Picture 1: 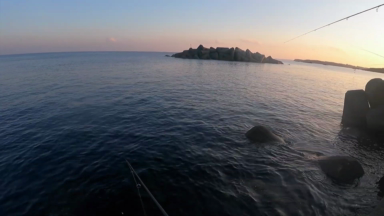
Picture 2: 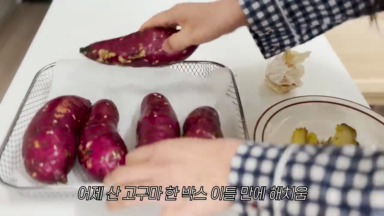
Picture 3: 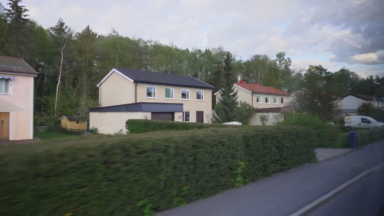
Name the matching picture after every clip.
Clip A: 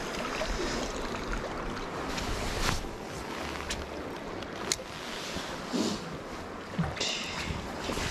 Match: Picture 1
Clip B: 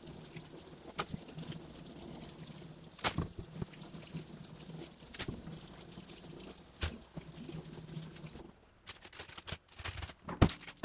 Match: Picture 2